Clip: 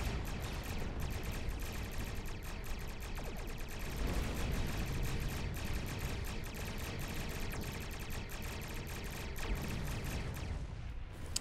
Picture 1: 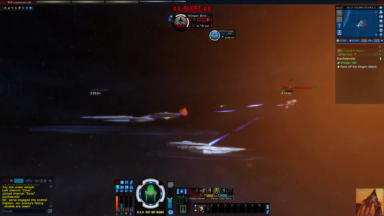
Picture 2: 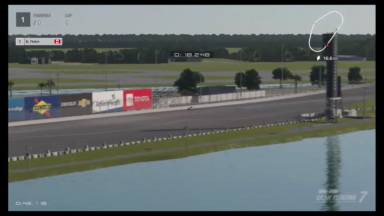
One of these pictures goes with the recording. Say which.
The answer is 1